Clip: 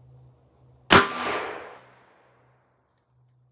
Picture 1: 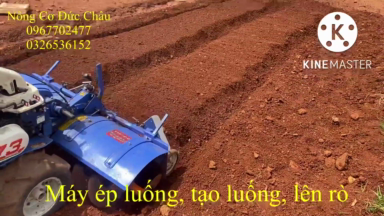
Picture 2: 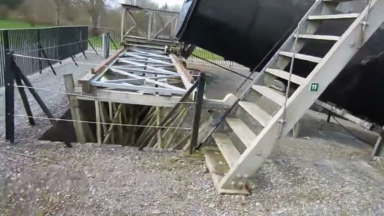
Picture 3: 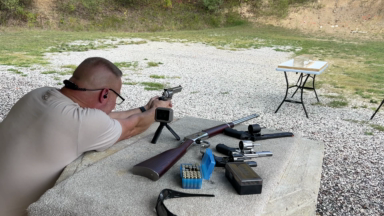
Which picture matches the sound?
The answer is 3